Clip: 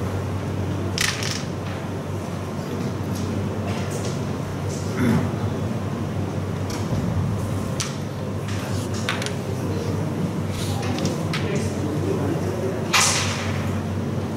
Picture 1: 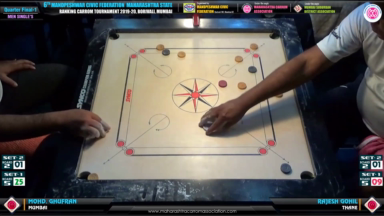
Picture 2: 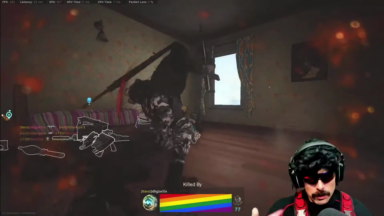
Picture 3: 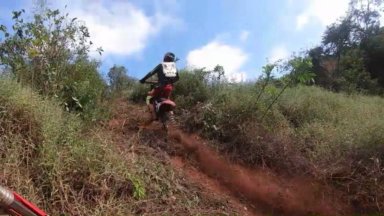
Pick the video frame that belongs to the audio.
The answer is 1